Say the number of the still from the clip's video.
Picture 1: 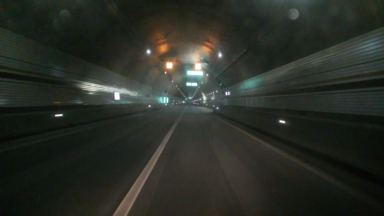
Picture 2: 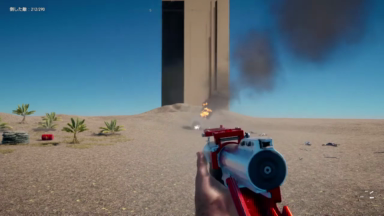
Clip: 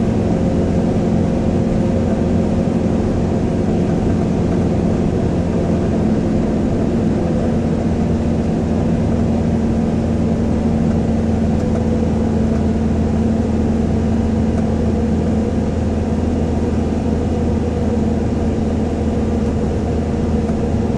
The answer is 1